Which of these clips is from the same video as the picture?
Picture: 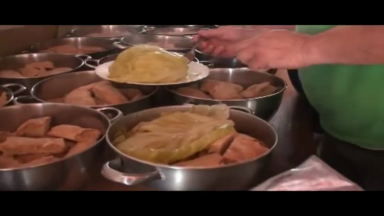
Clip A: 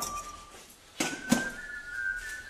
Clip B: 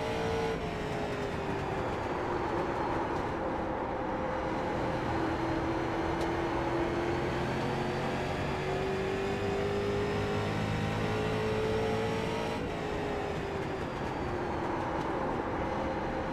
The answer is A